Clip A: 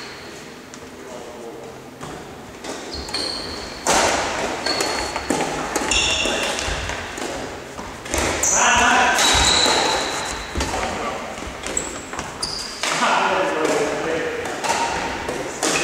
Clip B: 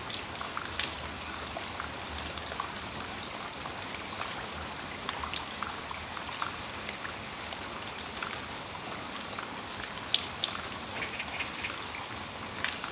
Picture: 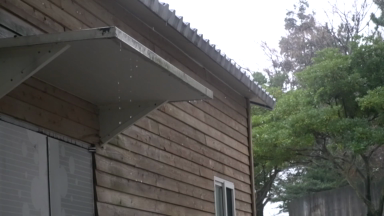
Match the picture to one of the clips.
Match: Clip B